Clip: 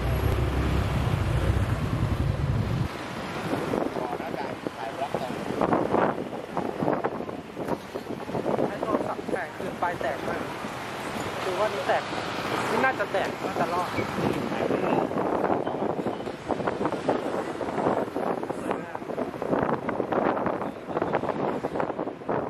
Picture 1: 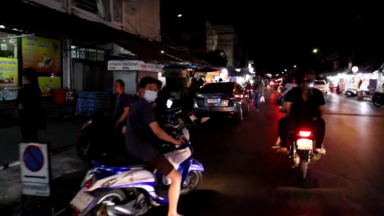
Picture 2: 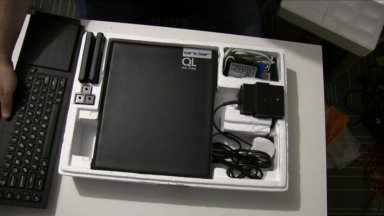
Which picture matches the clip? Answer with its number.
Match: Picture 1